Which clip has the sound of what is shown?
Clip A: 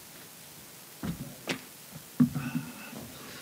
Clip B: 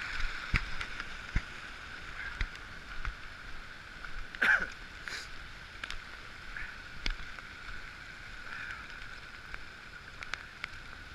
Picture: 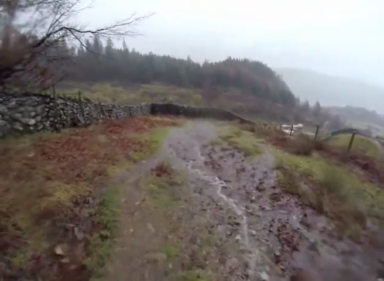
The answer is B